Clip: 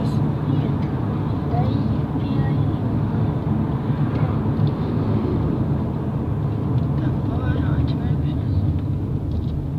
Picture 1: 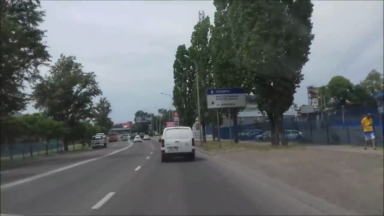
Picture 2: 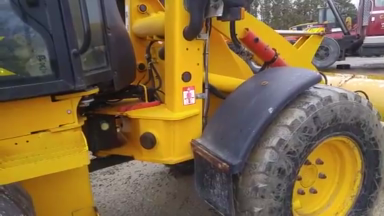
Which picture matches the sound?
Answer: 1